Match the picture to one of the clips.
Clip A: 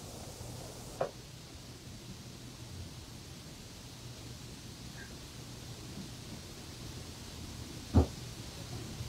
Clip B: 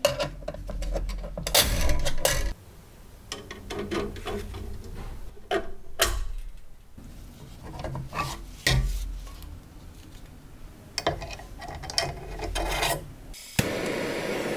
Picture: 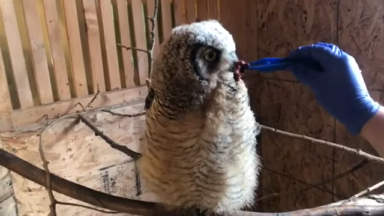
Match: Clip A